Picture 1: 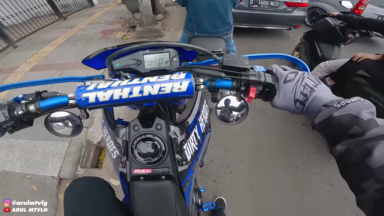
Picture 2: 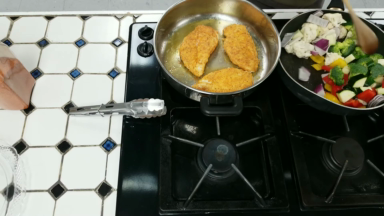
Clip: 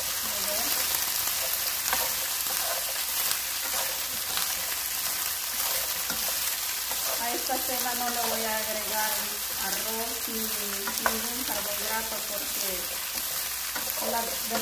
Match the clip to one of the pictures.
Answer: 2